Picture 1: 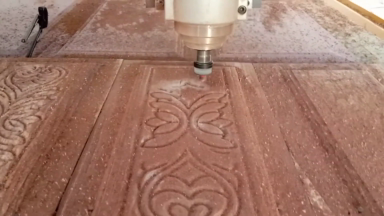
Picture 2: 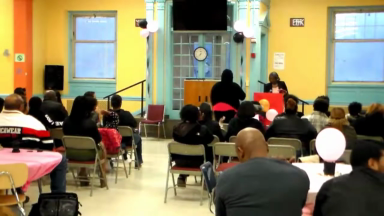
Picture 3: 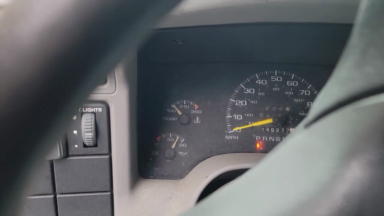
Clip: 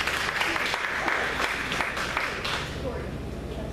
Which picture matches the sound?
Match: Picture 2